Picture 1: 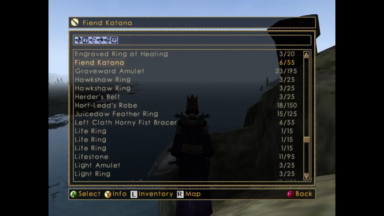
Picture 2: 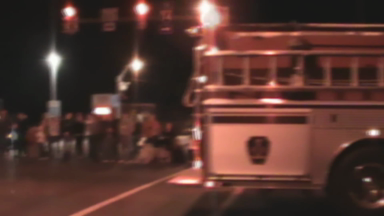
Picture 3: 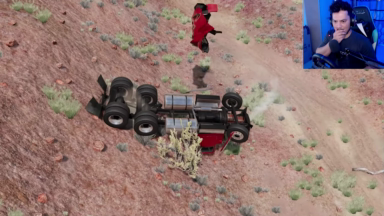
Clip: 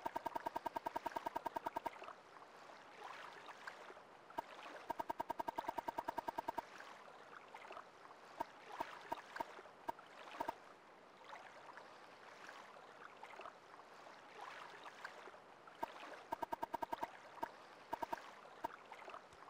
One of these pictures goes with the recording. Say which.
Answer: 1